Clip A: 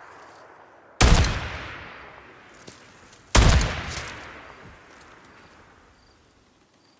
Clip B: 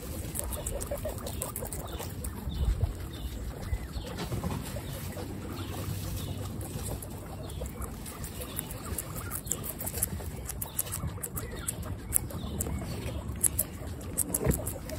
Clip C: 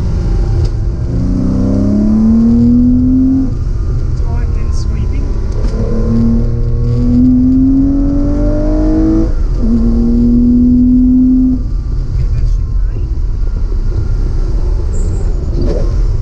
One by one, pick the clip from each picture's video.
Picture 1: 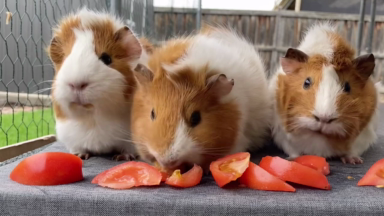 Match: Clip B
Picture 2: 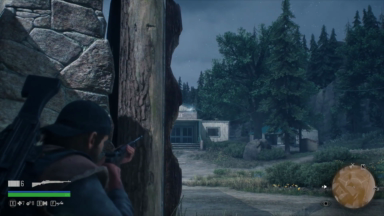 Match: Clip A